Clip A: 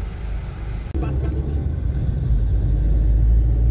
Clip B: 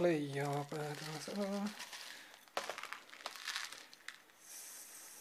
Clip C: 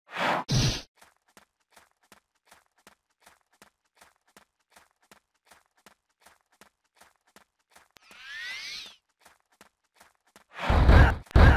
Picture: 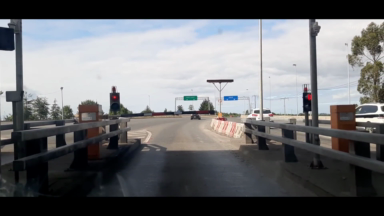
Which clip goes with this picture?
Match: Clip A